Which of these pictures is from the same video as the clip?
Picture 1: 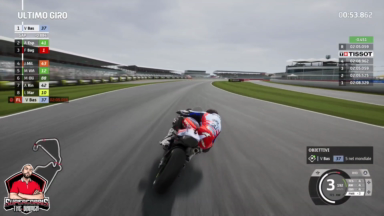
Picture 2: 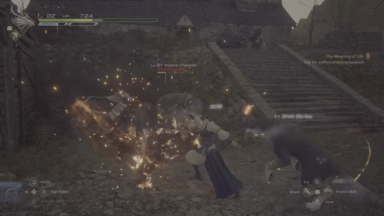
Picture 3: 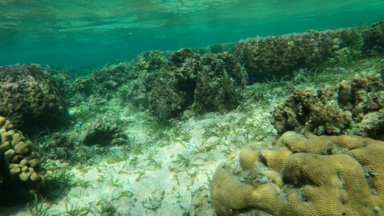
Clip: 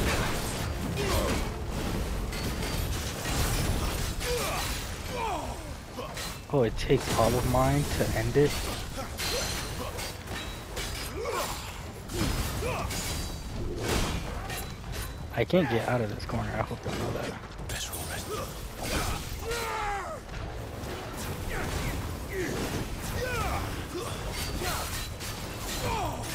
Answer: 2